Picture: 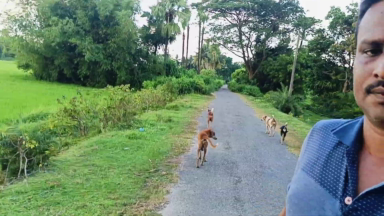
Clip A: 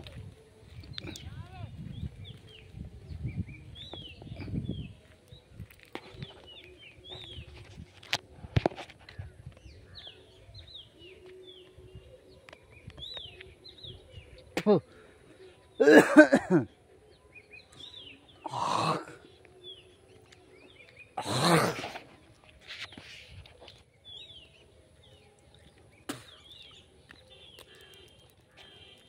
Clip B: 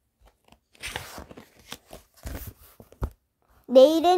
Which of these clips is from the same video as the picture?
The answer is A